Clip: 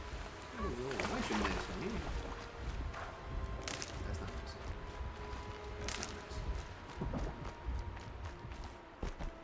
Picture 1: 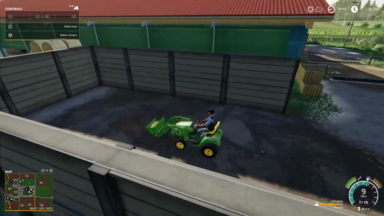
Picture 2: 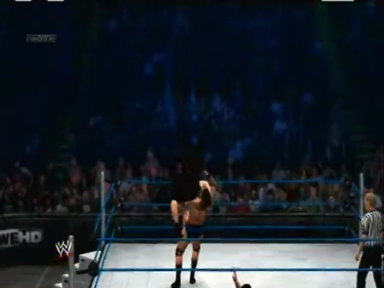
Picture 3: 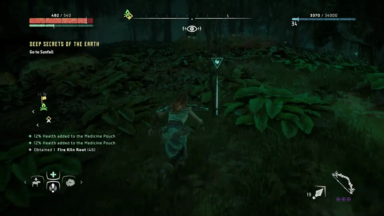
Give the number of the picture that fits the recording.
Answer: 3